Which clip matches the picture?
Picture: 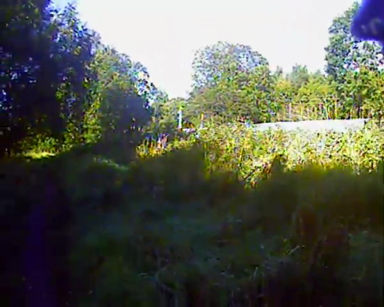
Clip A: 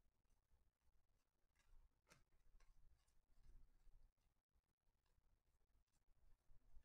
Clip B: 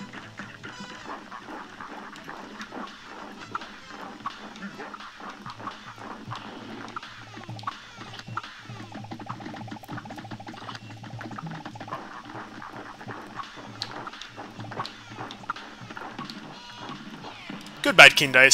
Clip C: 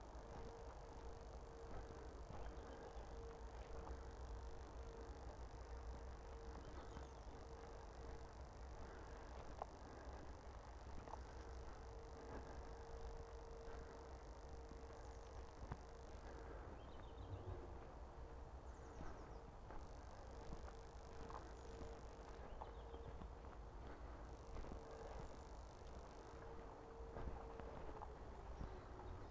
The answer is C